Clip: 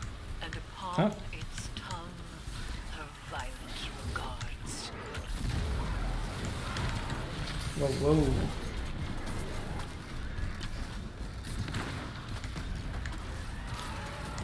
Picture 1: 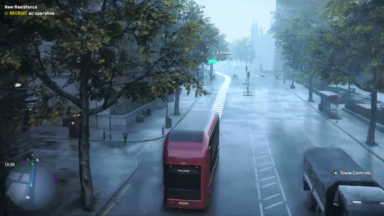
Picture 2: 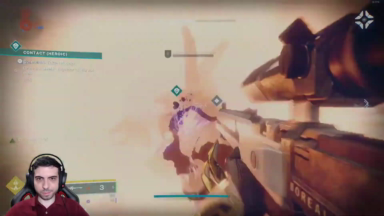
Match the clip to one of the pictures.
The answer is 2